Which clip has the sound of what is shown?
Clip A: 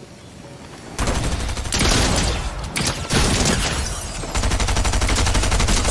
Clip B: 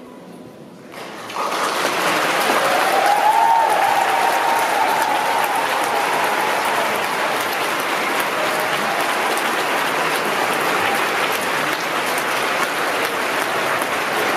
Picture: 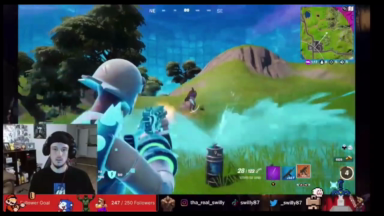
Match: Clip A